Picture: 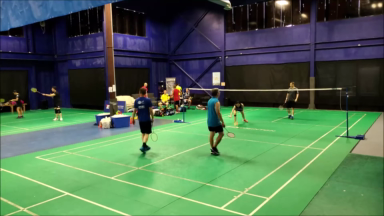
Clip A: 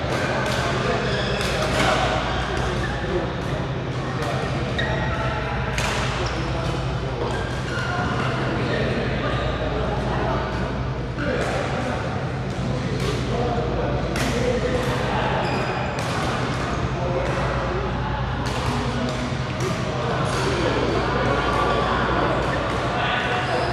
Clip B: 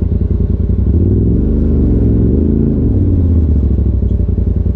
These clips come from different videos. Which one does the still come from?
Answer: A